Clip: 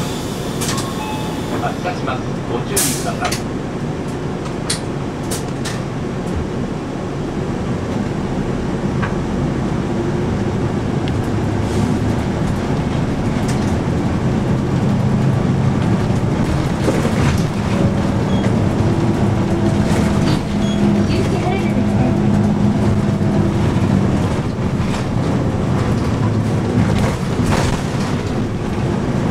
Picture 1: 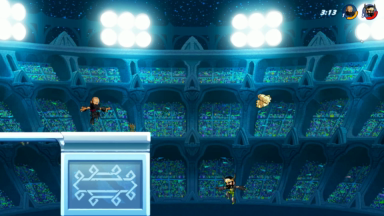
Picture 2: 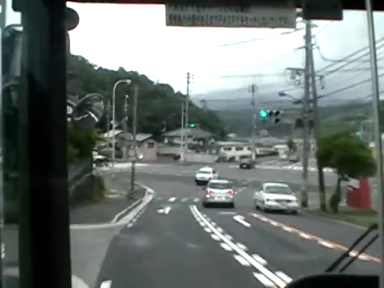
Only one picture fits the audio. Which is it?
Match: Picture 2